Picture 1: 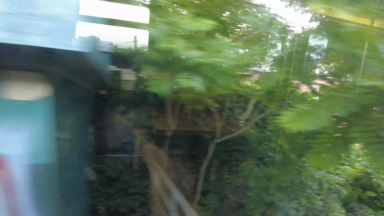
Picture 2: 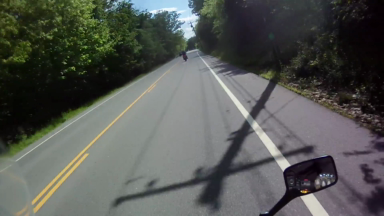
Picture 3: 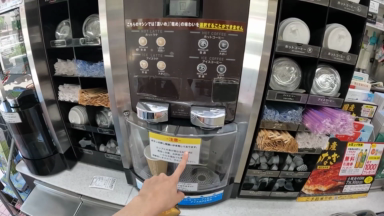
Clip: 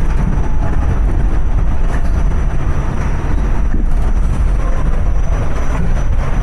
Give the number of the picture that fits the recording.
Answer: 1